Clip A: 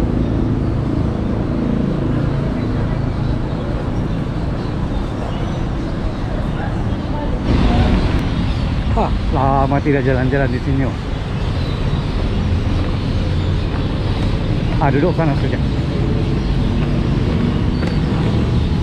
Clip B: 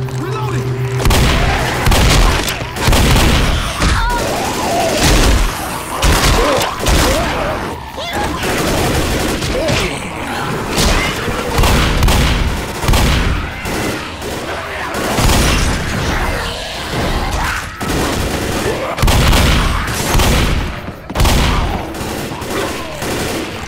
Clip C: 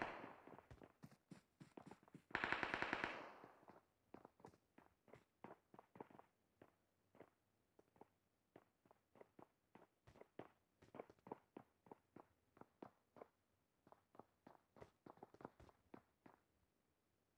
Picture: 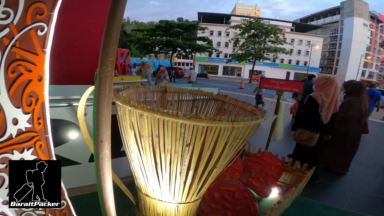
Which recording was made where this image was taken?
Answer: A